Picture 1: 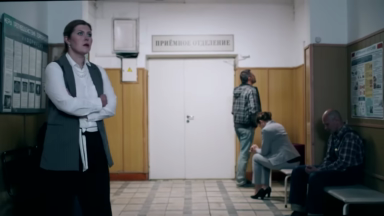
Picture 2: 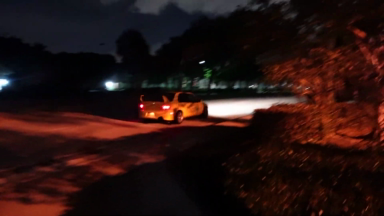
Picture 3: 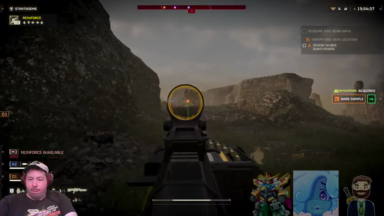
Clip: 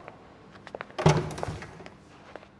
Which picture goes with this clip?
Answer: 1